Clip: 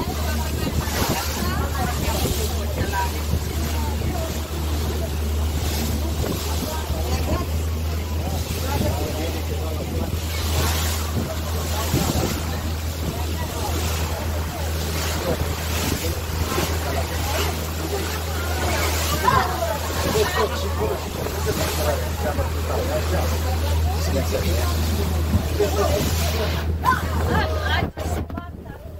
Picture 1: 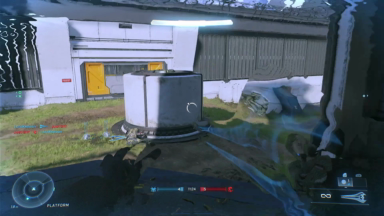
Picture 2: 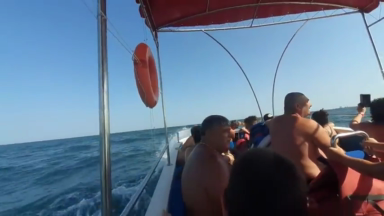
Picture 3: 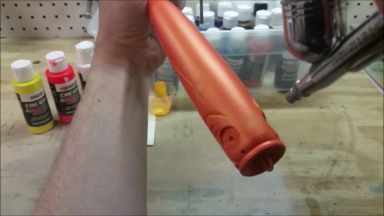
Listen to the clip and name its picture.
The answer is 2